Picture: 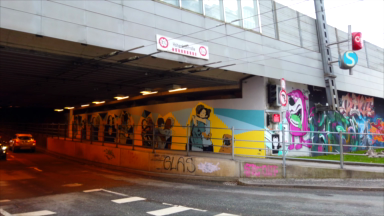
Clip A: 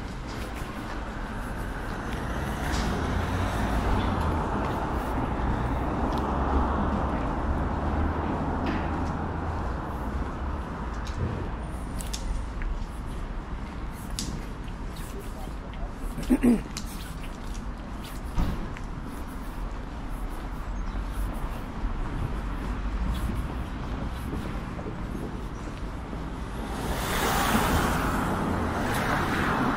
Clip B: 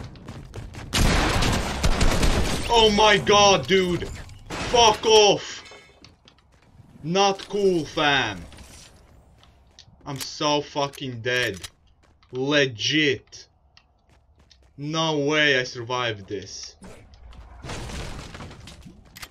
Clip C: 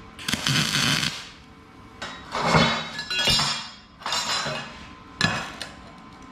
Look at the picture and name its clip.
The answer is A